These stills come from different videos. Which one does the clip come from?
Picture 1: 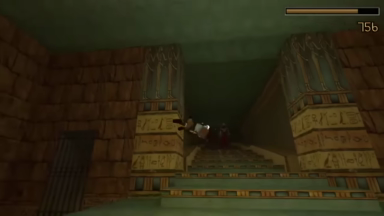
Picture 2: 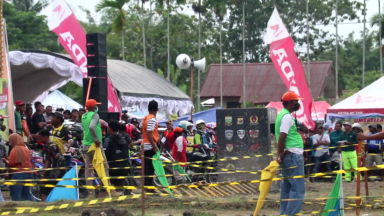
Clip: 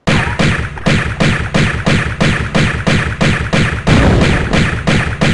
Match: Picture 1